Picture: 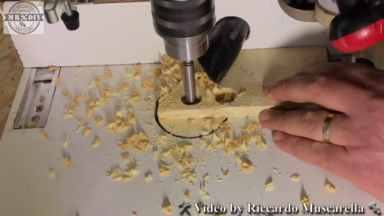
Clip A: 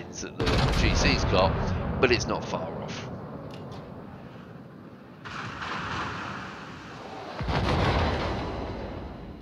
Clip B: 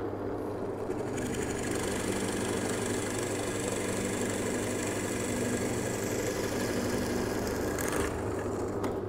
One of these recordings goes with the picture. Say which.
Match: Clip B